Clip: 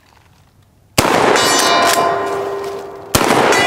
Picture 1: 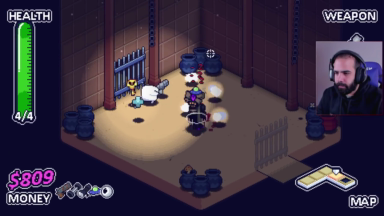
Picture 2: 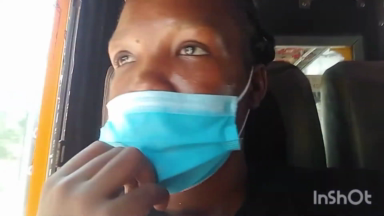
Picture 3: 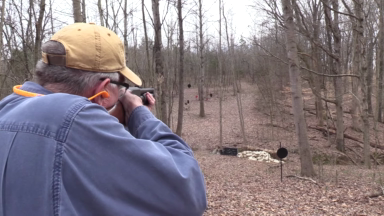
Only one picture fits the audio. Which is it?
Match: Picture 3